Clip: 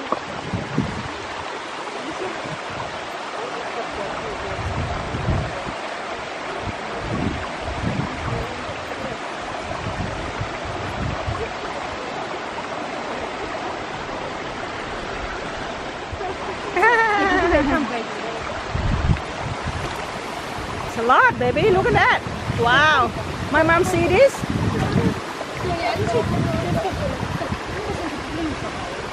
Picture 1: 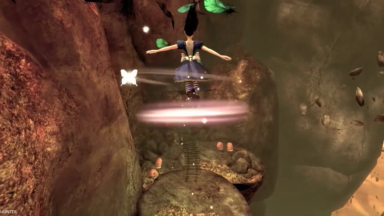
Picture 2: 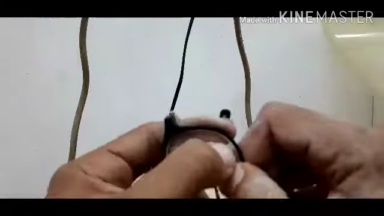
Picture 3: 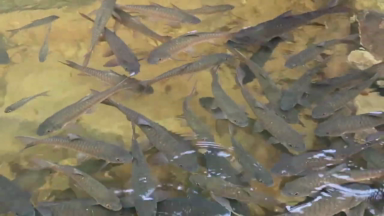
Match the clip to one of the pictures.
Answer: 3